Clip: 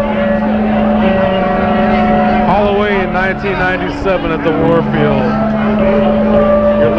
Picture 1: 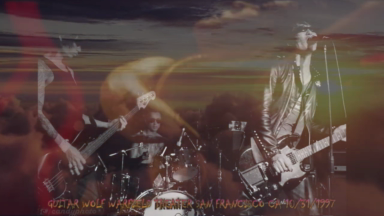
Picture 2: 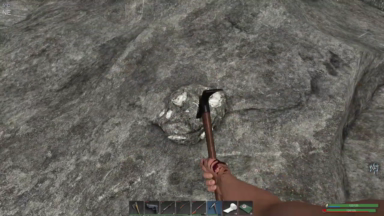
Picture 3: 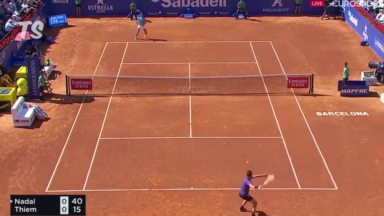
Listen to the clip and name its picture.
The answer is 1